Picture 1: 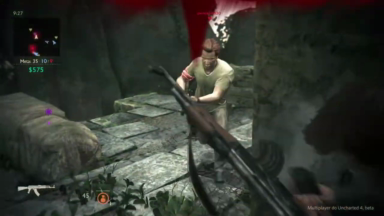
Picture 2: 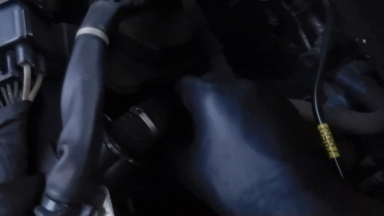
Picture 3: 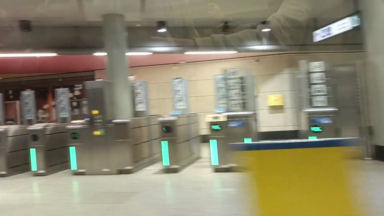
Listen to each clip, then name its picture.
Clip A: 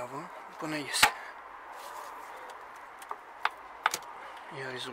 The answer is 2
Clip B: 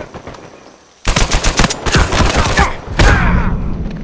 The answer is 1